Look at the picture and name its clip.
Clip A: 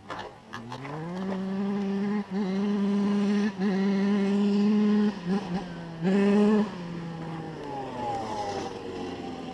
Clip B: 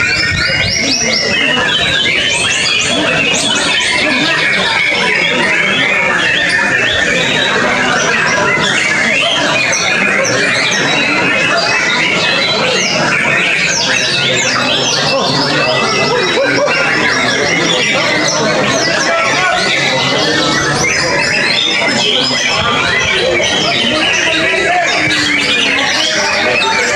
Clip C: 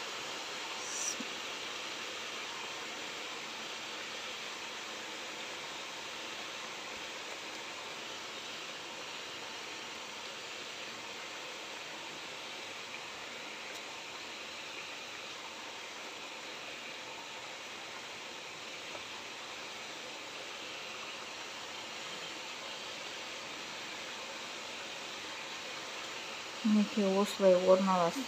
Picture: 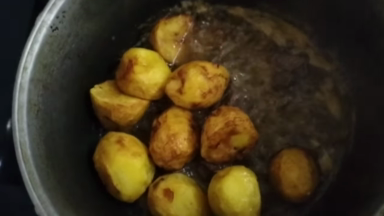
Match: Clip C